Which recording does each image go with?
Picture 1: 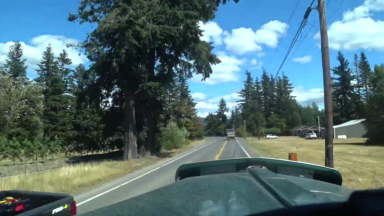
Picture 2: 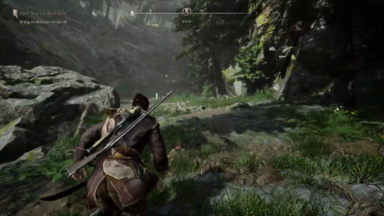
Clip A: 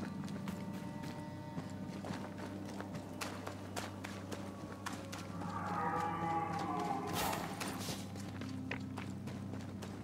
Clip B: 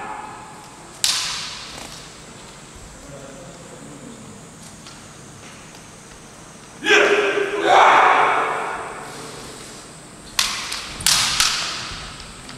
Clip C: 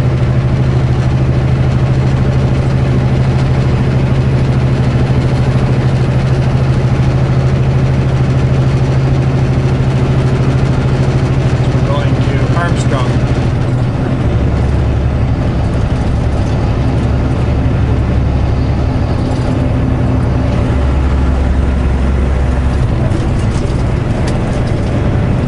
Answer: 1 C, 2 A